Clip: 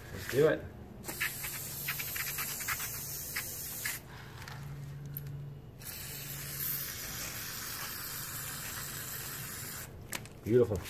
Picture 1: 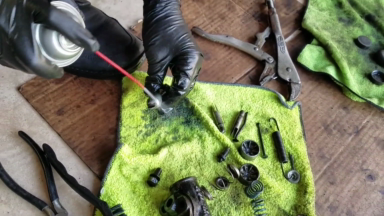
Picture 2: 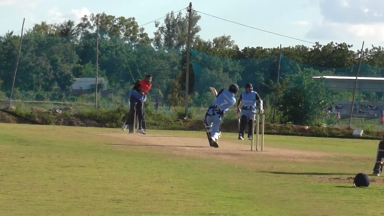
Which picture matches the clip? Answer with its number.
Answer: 1